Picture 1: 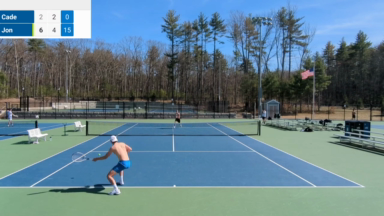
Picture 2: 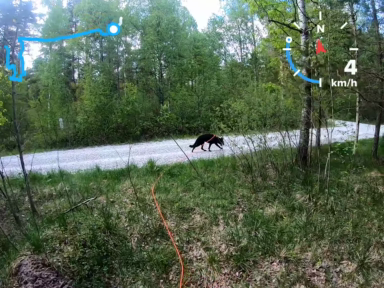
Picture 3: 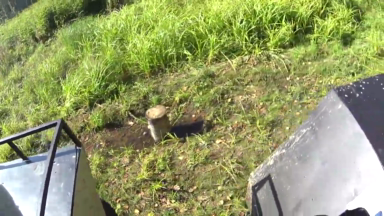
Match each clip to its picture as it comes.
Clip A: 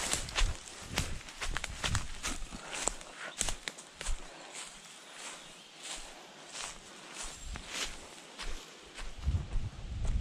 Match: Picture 2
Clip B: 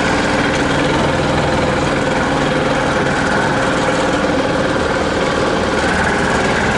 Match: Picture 3